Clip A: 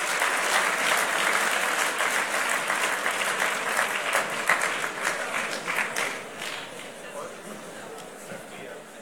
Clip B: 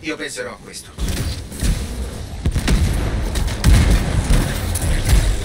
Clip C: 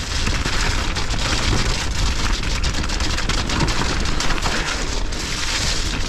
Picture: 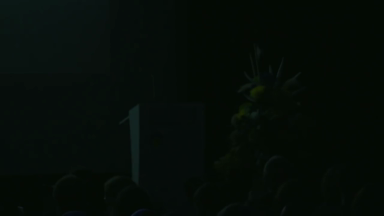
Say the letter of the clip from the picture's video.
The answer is A